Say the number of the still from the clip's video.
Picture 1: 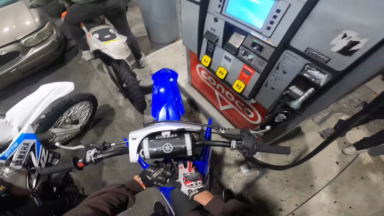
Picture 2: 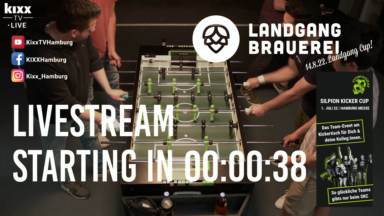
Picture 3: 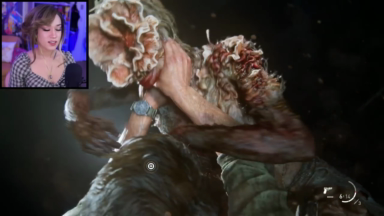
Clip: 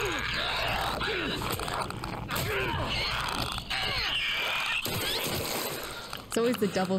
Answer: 3